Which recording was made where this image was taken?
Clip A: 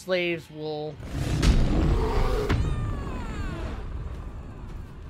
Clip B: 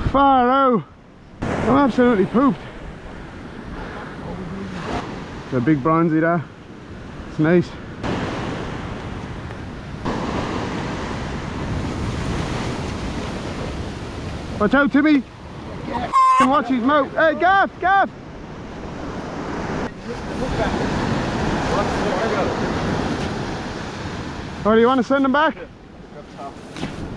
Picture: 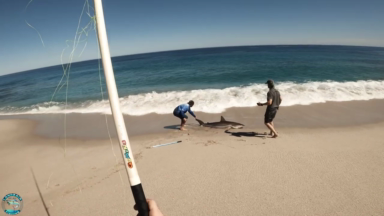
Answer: B